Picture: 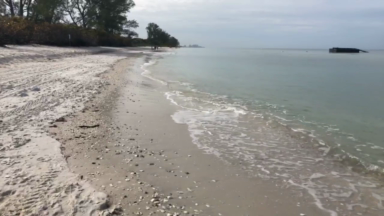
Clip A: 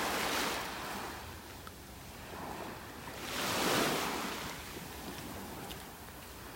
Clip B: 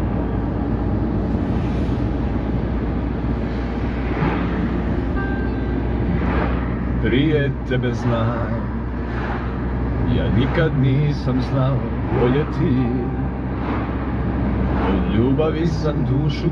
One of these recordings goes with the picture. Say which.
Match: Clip A